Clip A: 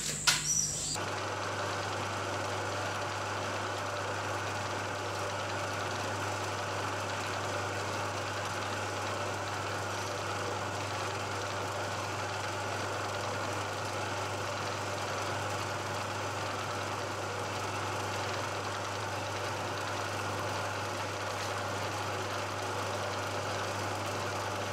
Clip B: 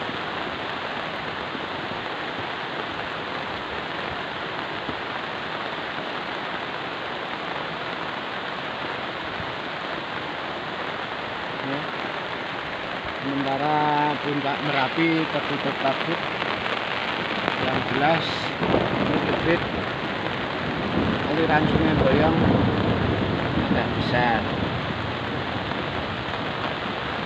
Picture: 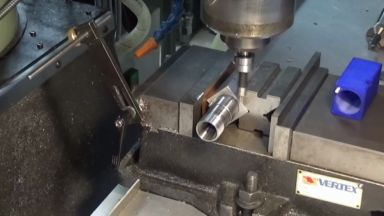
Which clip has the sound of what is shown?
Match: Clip A